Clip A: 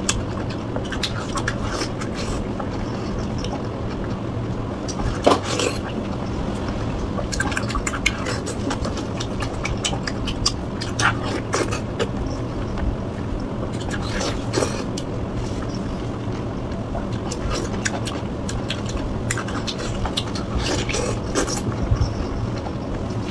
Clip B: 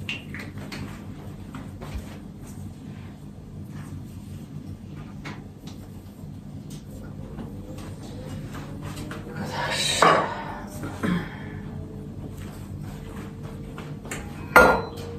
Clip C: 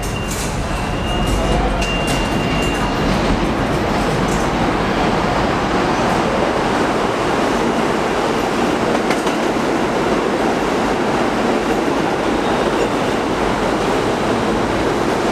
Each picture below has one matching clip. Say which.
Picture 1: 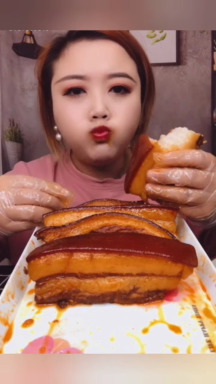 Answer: A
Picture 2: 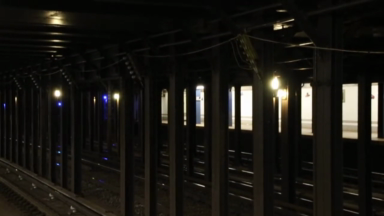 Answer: C